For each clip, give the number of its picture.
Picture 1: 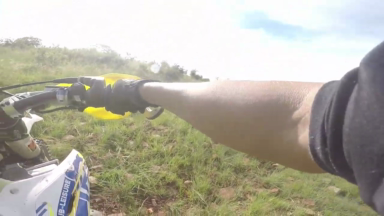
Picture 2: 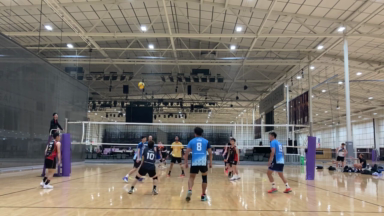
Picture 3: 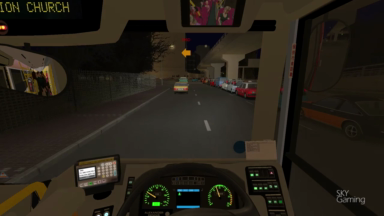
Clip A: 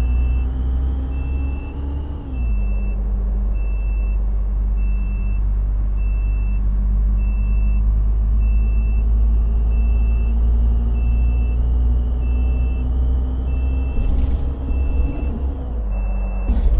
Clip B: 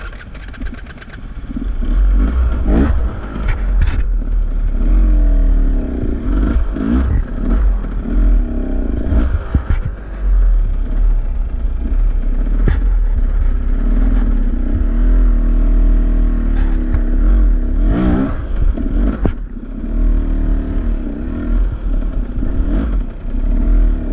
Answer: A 3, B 1